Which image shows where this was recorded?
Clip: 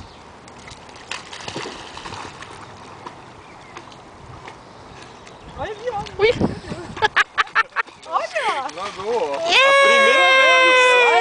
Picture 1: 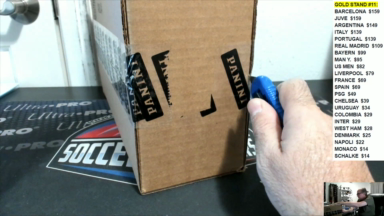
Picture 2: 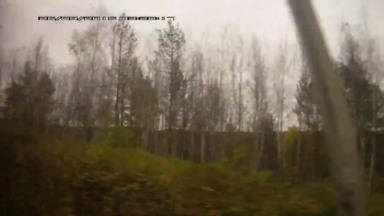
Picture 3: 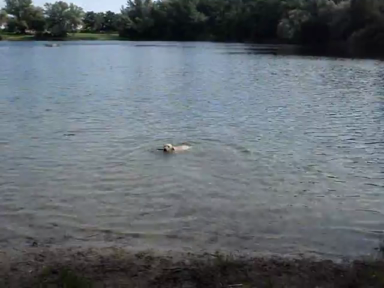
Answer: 3